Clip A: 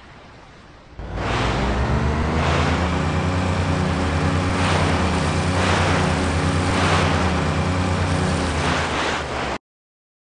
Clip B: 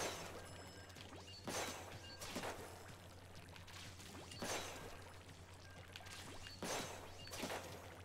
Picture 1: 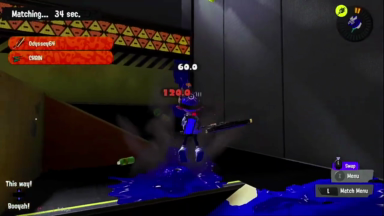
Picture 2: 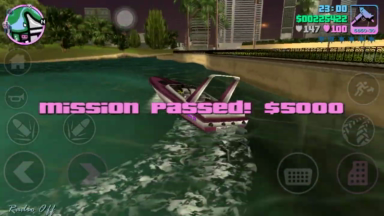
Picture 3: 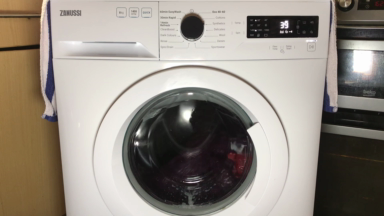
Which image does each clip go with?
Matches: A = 2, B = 1